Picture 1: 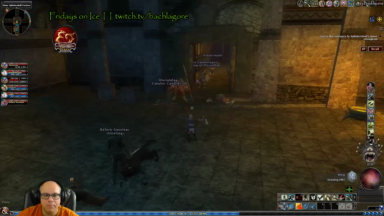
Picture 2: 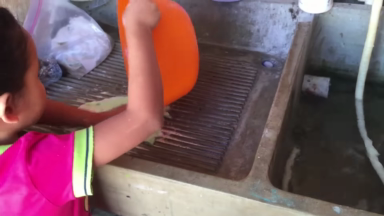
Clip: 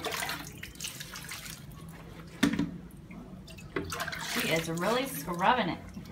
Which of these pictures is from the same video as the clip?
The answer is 2